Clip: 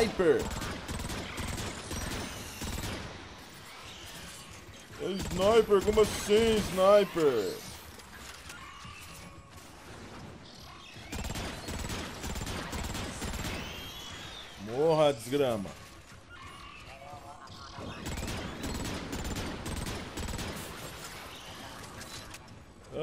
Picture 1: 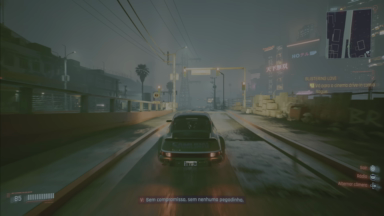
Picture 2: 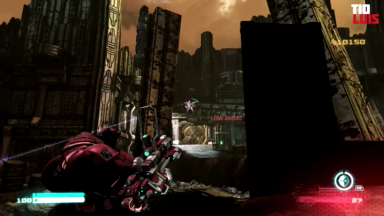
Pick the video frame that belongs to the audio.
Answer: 2